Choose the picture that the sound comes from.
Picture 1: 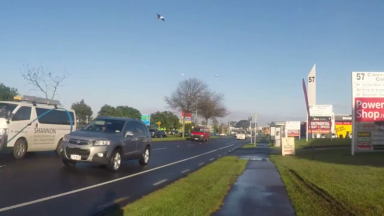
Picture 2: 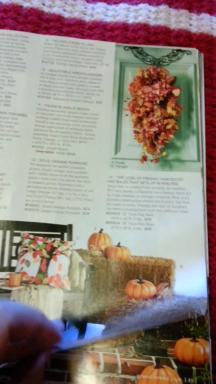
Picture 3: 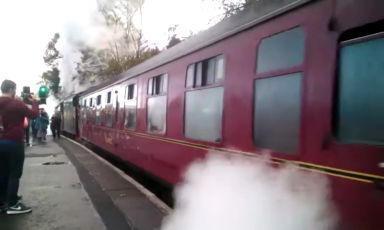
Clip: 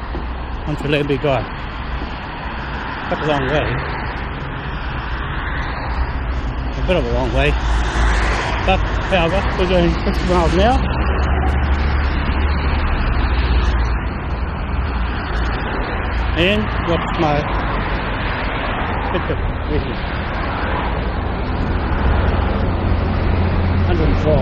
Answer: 1